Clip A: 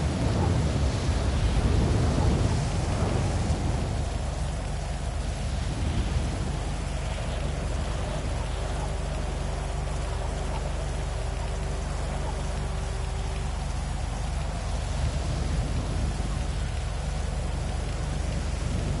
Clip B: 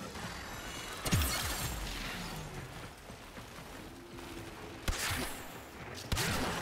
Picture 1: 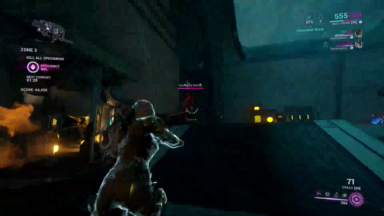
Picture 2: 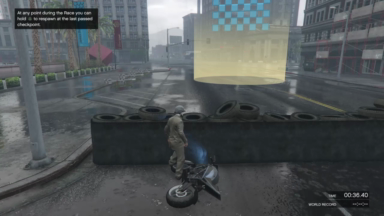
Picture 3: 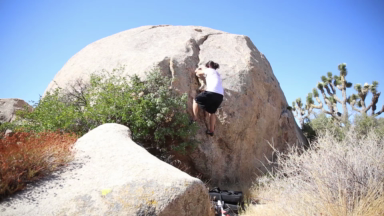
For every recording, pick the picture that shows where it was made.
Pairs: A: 2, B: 1